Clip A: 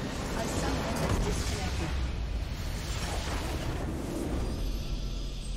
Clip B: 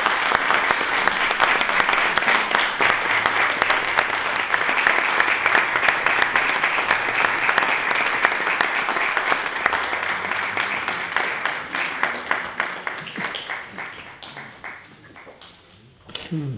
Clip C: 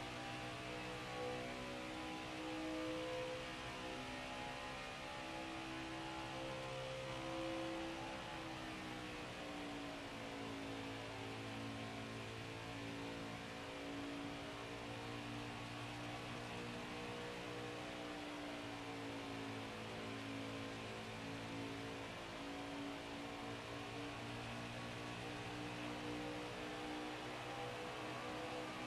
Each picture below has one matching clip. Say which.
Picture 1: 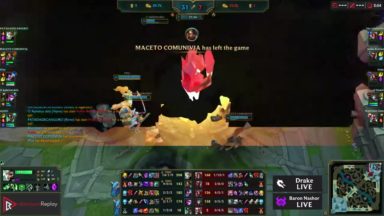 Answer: A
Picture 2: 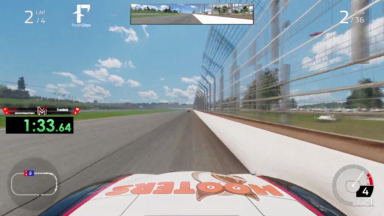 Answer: C